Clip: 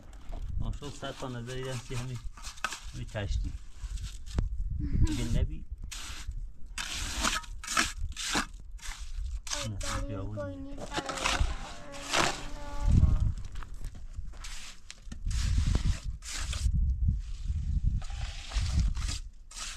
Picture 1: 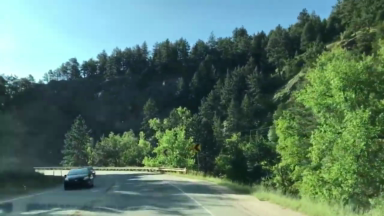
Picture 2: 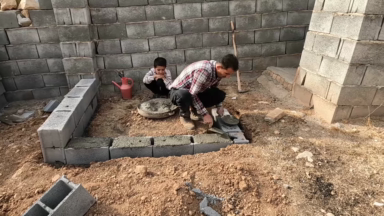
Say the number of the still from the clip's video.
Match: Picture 2